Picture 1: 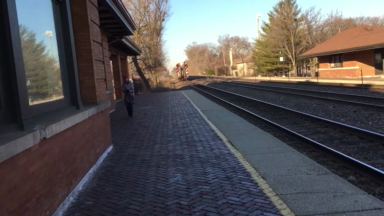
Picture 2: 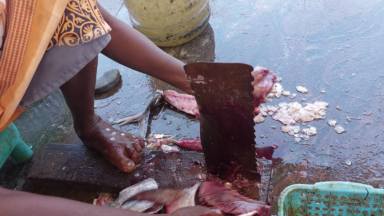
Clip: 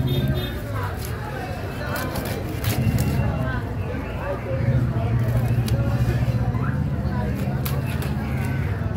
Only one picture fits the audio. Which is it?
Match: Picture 2